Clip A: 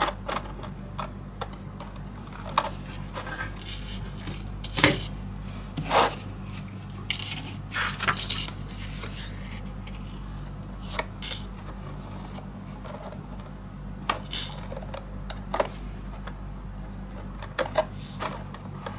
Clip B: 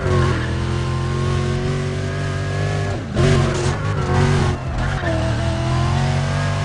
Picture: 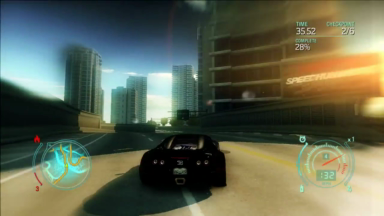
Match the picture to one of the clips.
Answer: B